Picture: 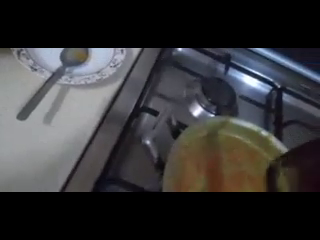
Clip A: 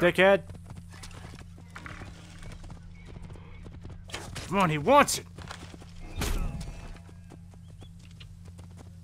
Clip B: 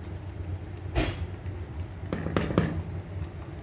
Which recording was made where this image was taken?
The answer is B